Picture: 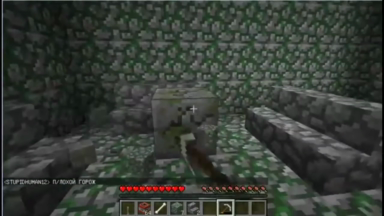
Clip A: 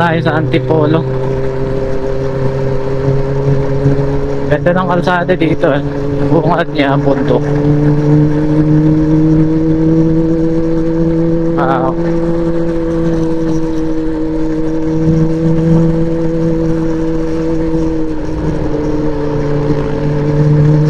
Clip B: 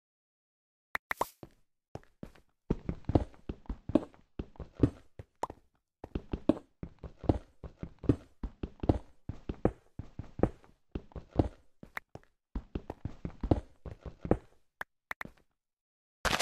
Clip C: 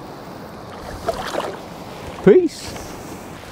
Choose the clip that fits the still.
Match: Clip B